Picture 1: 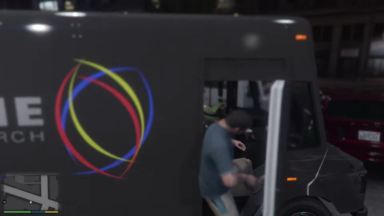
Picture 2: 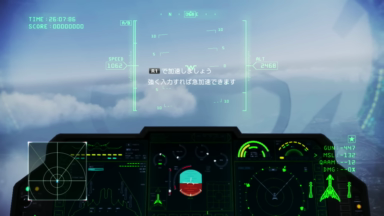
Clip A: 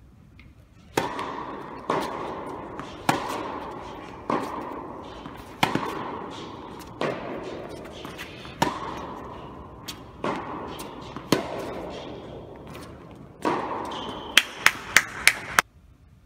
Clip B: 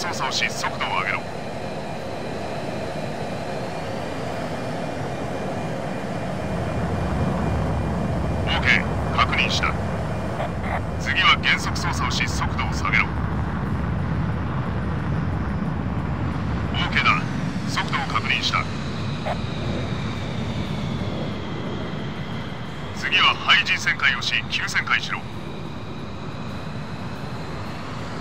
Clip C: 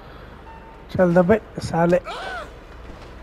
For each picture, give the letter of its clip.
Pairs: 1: C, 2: B